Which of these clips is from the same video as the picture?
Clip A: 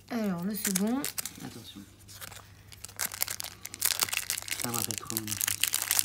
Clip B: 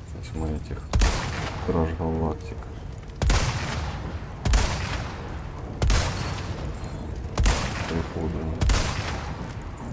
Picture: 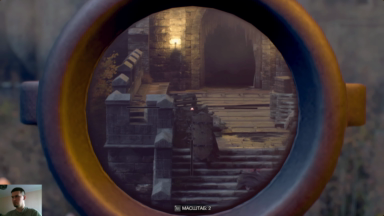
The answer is B